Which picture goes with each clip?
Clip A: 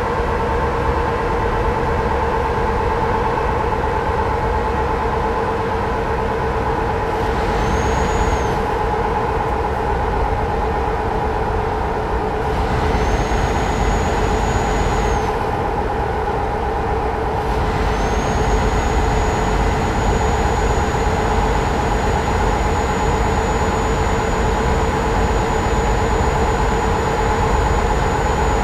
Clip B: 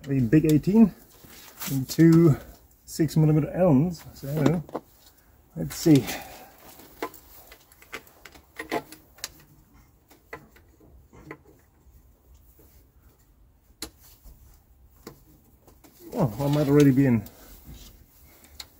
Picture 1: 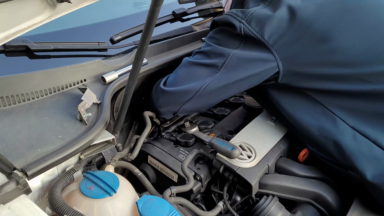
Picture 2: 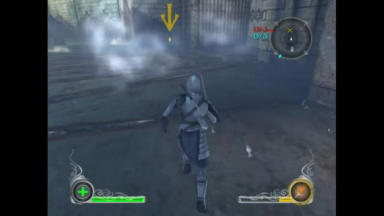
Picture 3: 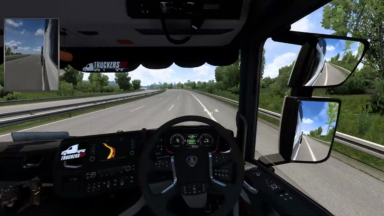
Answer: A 3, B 1